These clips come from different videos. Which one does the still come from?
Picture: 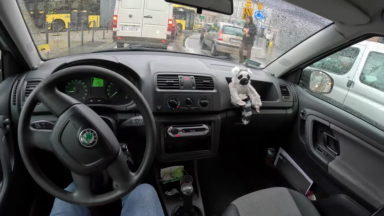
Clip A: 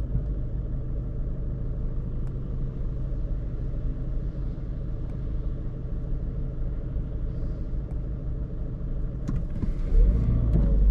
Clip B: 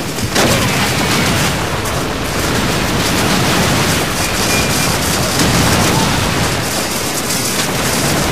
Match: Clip A